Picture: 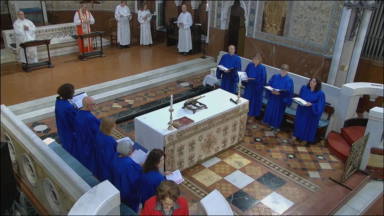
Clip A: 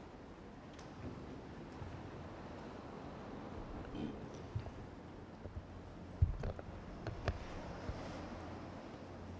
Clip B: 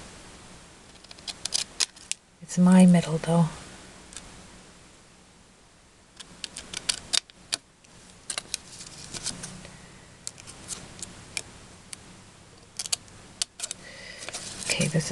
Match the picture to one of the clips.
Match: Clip A